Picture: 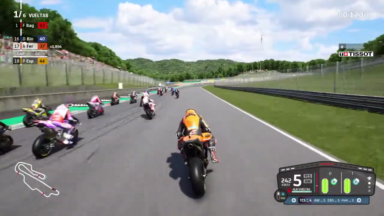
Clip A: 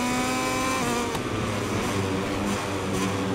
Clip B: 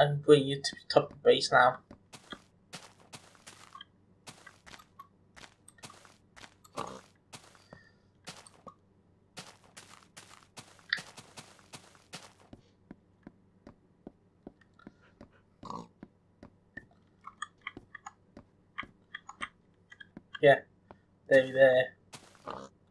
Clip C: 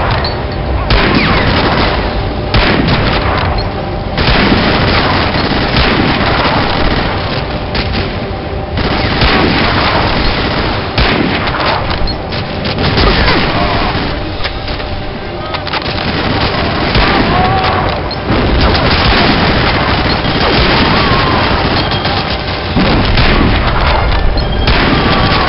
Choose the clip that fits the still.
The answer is A